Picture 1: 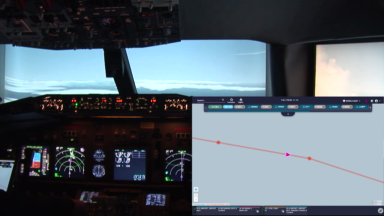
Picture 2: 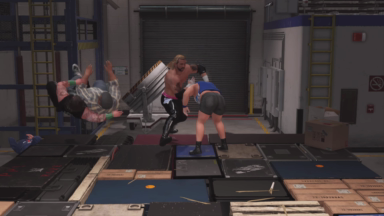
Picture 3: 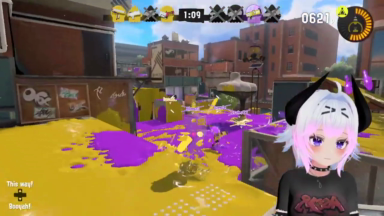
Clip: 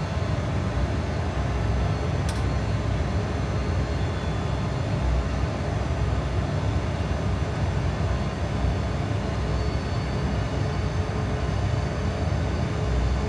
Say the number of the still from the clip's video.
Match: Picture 1